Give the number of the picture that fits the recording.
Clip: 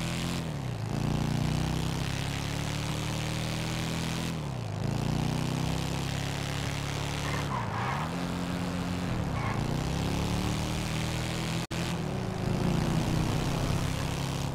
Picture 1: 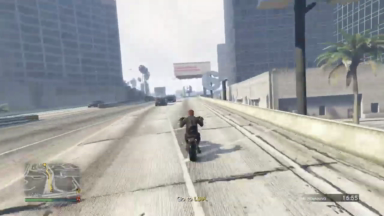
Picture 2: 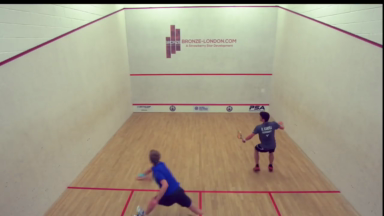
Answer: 1